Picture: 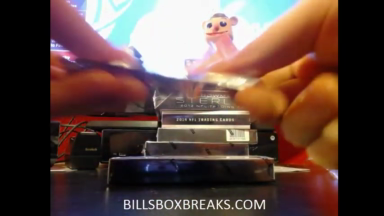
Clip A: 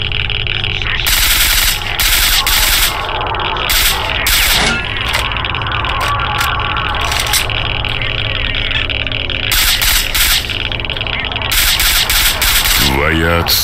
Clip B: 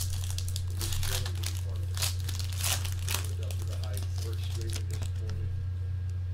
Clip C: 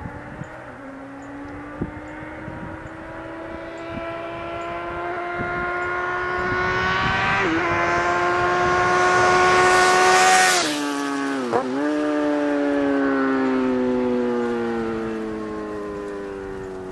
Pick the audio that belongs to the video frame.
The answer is B